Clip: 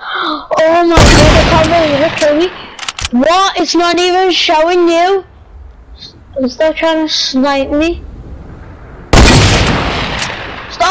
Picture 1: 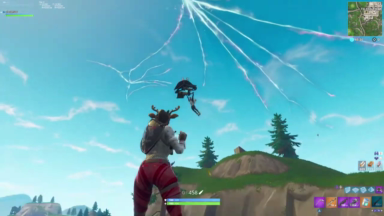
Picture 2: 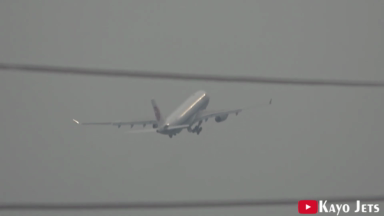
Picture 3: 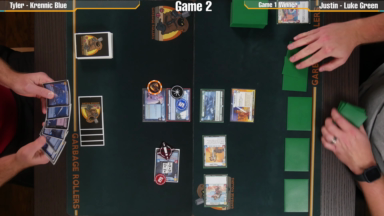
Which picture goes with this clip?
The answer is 1